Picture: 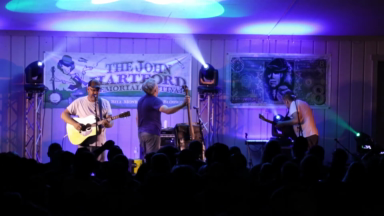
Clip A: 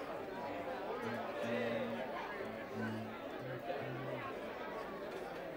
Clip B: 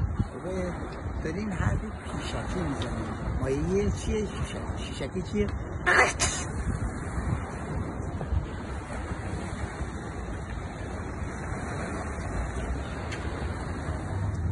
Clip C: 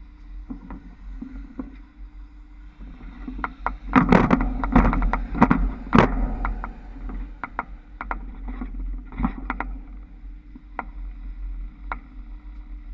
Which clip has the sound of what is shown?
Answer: A